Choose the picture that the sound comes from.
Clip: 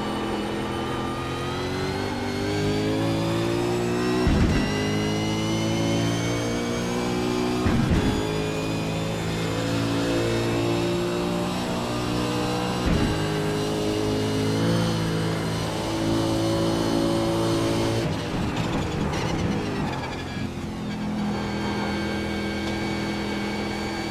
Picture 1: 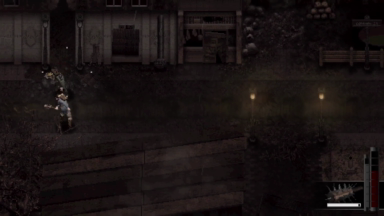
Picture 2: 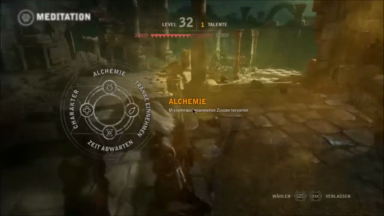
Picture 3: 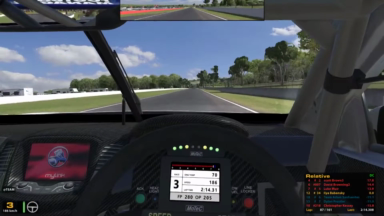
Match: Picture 3